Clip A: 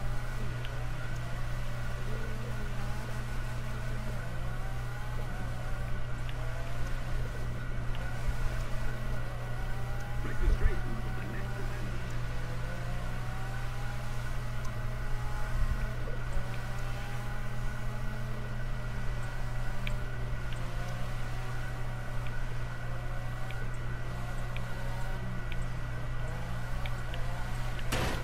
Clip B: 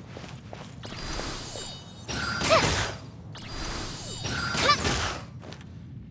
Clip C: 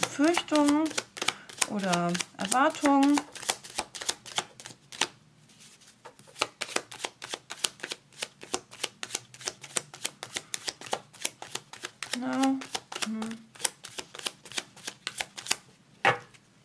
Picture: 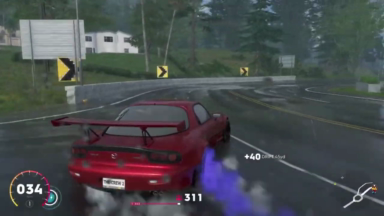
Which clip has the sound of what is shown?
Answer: A